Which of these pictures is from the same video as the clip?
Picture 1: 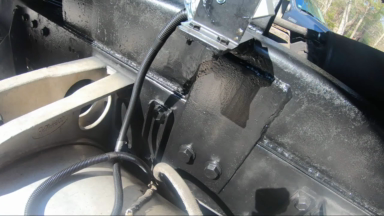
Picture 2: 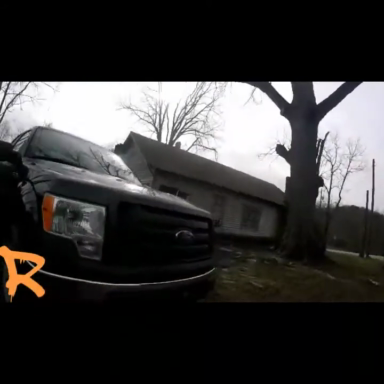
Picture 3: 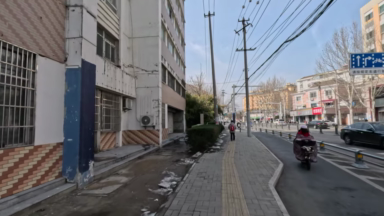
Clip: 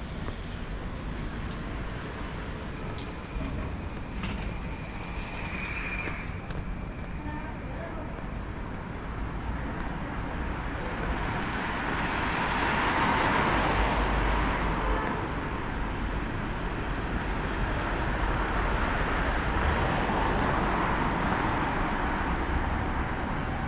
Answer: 3